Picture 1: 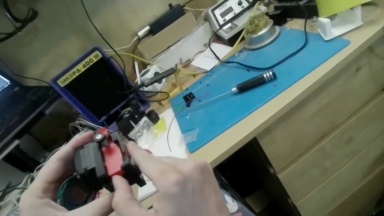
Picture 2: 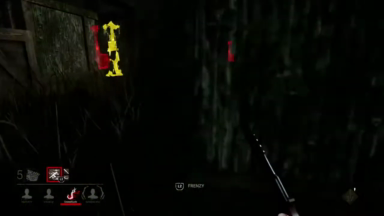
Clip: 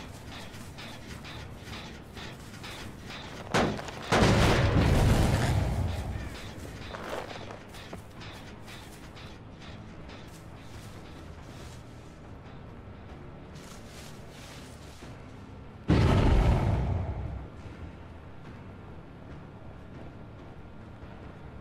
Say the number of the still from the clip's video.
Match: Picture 2